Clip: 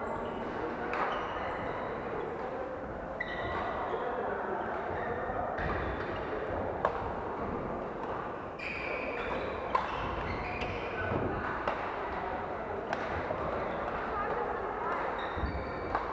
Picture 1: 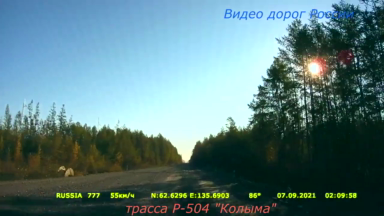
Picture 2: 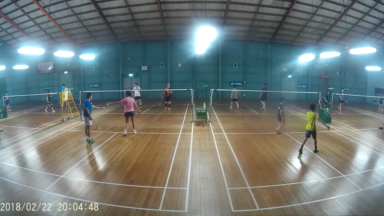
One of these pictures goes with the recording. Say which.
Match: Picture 2